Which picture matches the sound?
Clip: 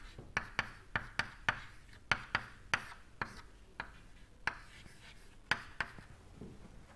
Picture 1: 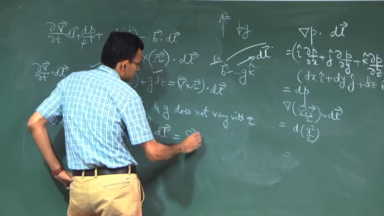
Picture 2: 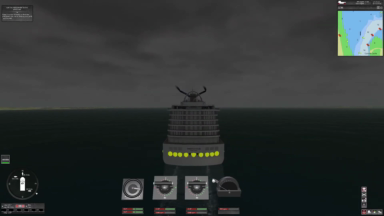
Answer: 1